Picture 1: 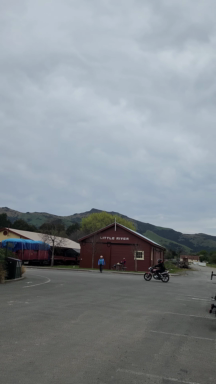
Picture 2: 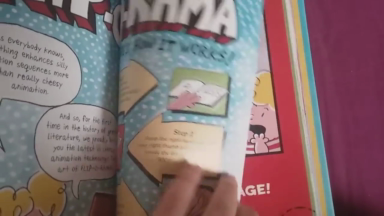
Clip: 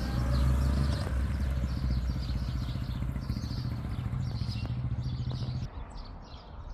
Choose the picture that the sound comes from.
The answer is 1